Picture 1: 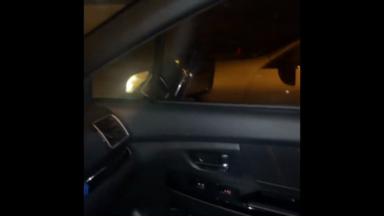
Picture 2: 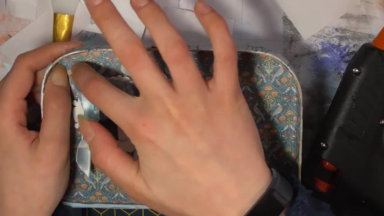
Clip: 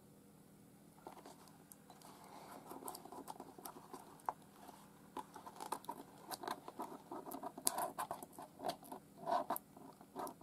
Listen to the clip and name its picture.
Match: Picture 2